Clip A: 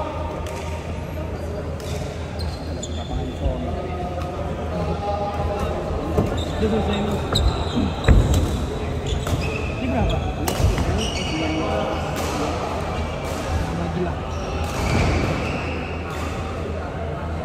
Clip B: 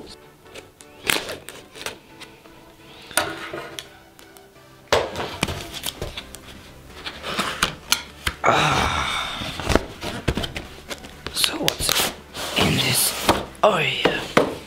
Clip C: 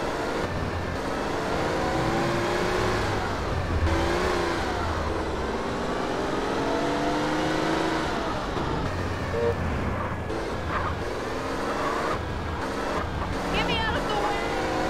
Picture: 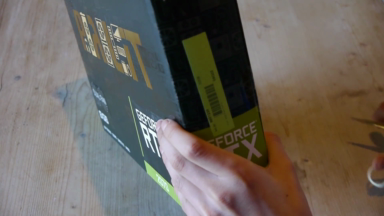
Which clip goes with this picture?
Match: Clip B